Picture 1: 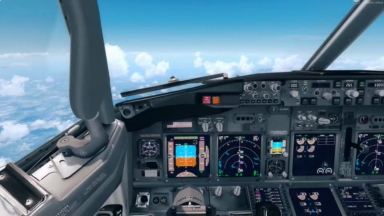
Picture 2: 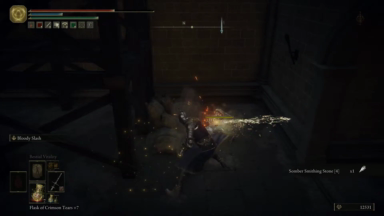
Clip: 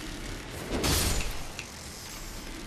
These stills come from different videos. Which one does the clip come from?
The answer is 2